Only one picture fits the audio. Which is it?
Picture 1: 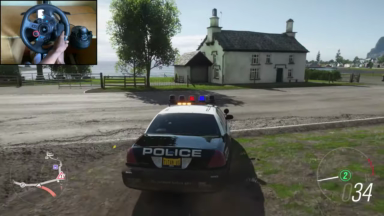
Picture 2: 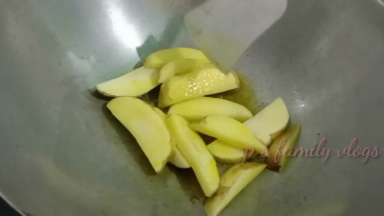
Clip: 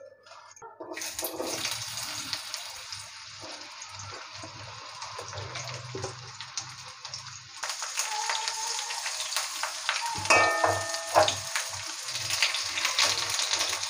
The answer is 2